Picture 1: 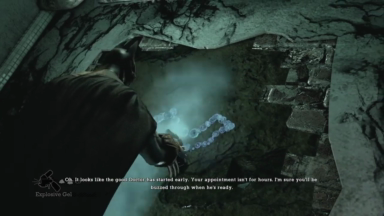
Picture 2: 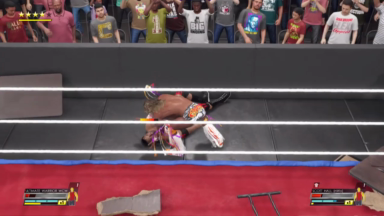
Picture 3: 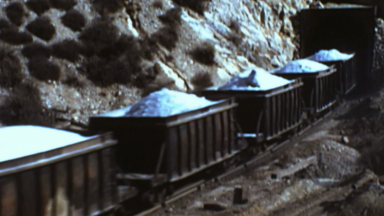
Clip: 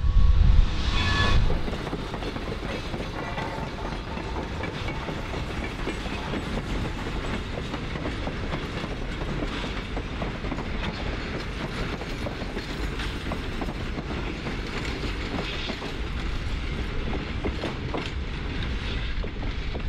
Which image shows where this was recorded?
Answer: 3